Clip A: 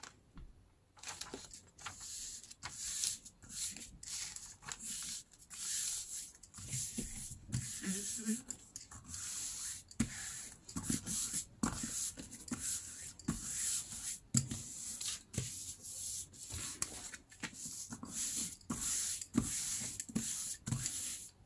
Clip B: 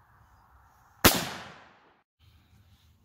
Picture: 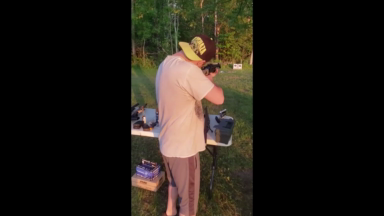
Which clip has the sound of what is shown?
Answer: B